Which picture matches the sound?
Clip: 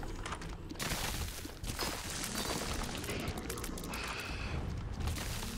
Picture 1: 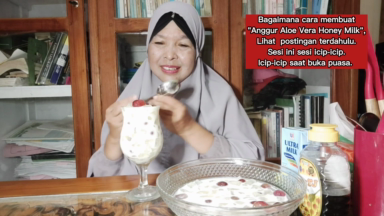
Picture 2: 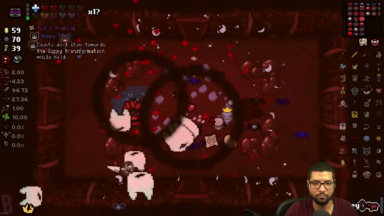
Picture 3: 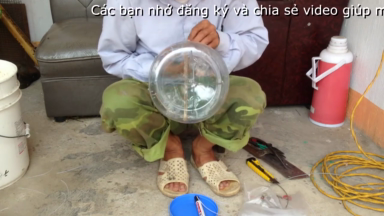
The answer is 2